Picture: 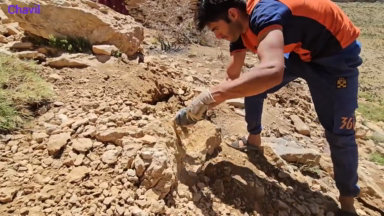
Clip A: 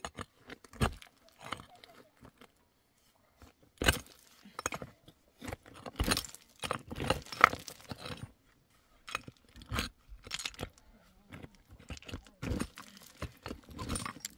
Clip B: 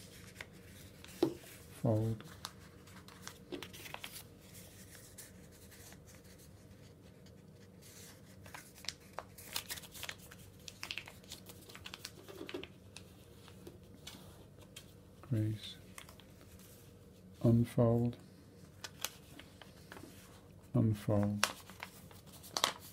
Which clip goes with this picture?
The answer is A